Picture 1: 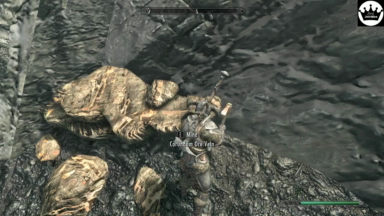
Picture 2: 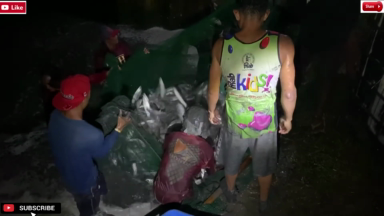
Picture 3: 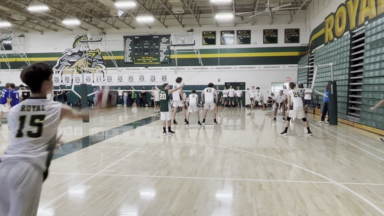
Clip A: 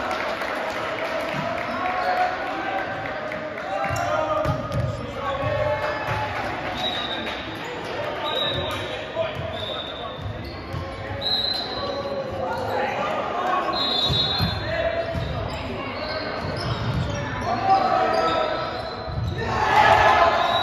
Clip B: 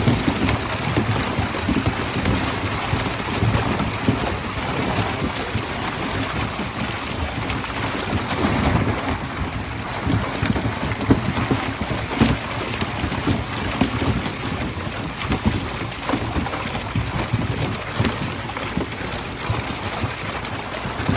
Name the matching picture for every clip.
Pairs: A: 3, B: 2